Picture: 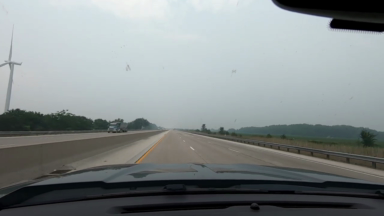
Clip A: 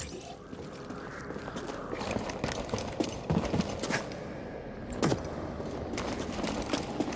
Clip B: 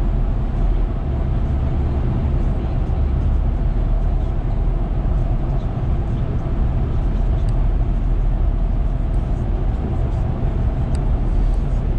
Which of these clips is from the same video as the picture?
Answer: B